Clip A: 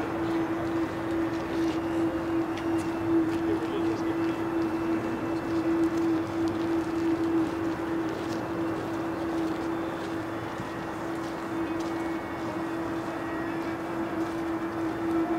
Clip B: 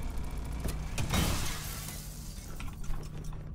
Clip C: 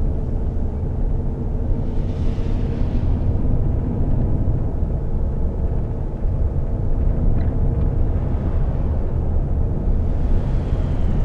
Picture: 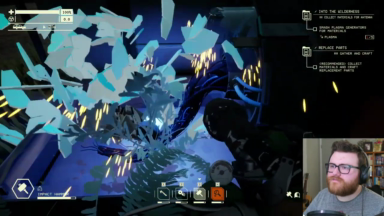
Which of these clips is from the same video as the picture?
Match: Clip B